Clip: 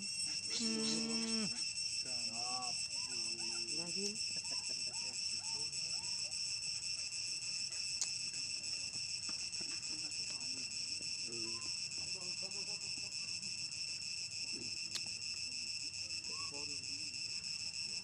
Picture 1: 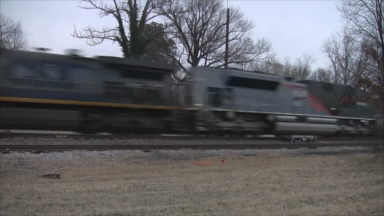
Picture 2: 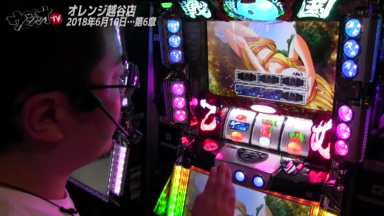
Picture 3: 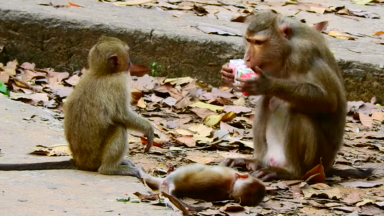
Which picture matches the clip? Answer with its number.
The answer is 3